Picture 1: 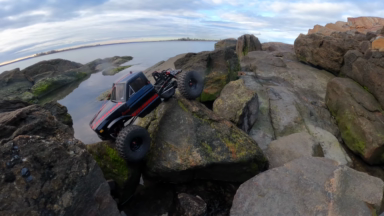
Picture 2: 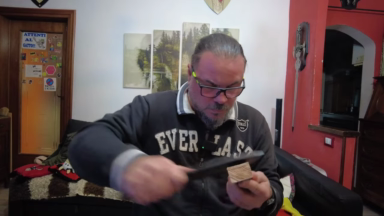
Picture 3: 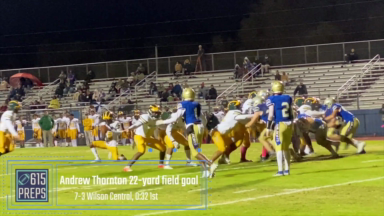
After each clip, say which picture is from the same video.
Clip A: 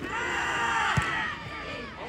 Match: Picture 3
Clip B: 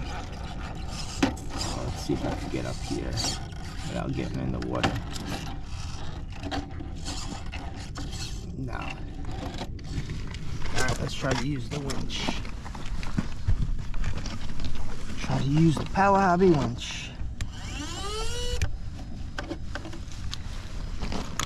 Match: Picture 1